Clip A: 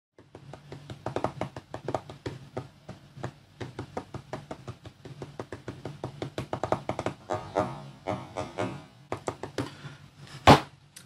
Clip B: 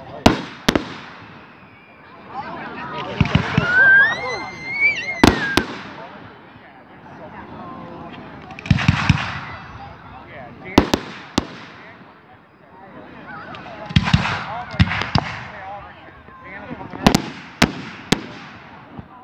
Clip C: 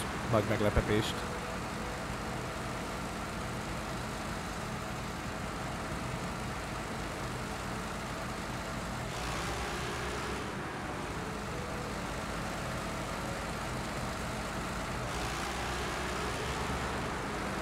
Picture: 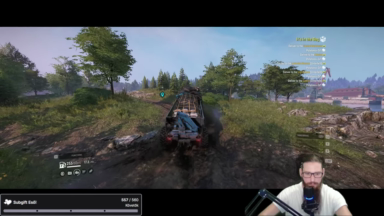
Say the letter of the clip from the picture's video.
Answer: C